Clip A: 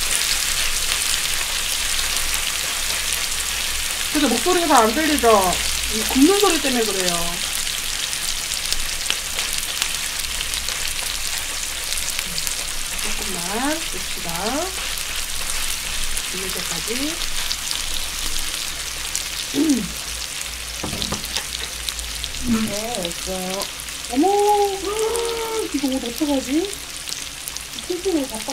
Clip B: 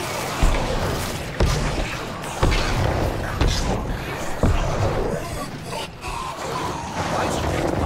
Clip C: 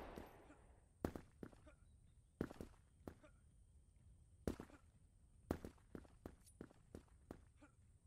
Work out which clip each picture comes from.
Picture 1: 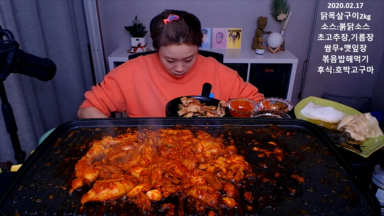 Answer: A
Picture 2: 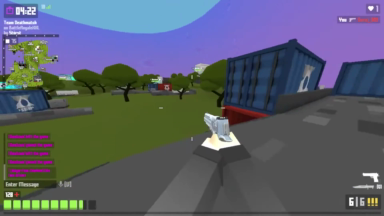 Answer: C